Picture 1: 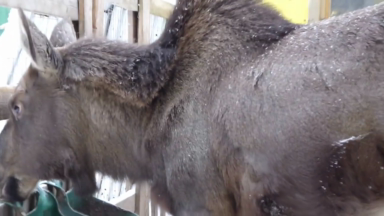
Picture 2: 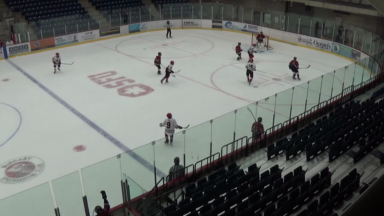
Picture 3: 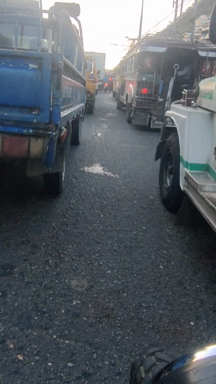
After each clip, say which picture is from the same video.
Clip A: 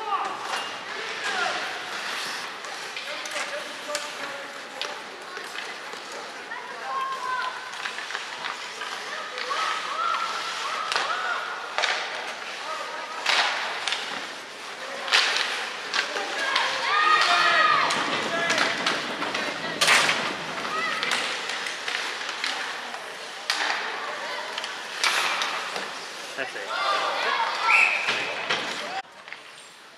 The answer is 2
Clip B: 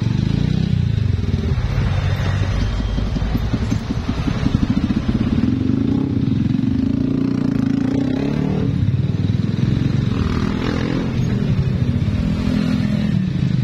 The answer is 3